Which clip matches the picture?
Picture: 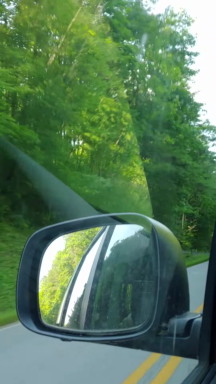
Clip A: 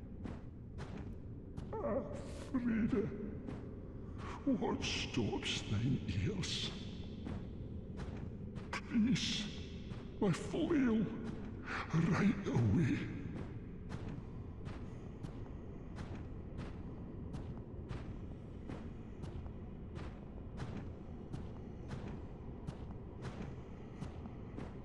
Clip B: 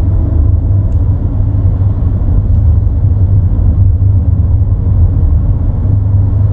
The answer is B